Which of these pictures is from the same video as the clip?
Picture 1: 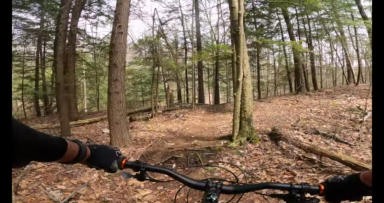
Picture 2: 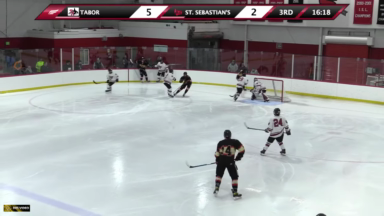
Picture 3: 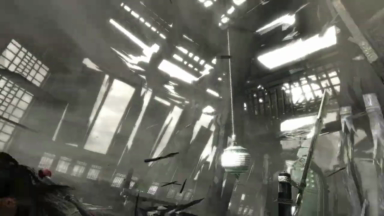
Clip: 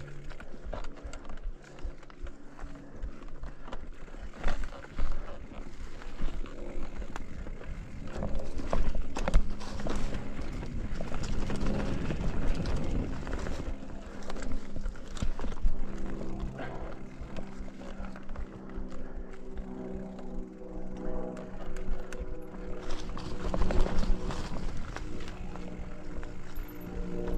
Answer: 1